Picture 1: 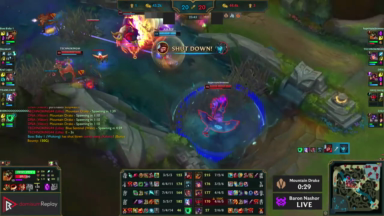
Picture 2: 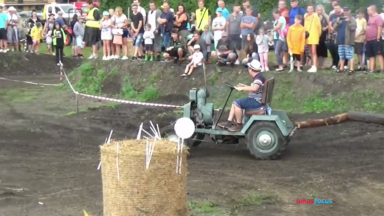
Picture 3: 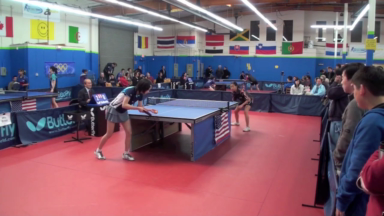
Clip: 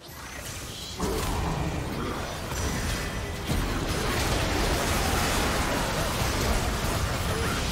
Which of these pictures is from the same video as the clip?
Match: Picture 1